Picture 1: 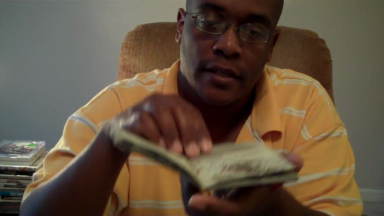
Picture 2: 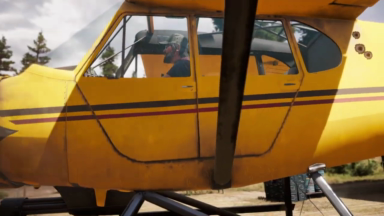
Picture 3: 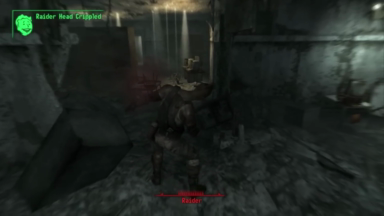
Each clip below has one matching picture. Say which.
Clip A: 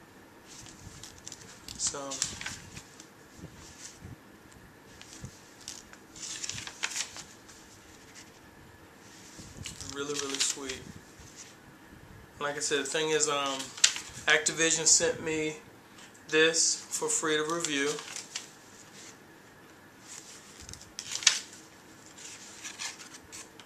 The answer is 1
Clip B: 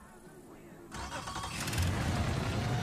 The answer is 2